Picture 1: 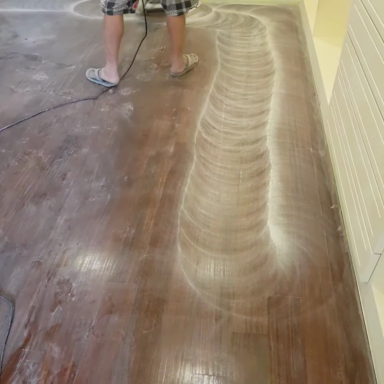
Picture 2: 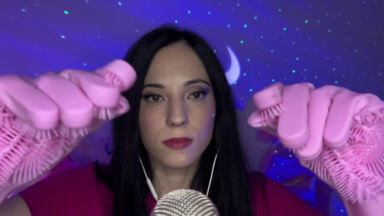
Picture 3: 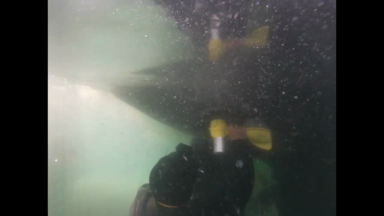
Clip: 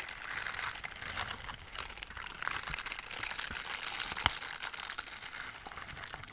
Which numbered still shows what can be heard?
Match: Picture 2